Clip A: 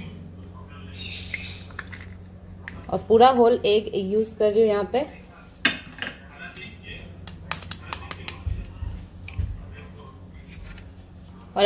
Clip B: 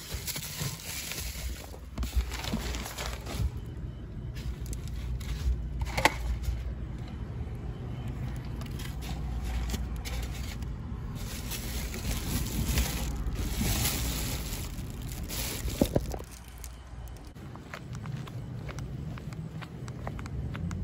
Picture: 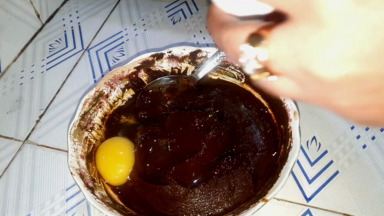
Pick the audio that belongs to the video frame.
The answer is A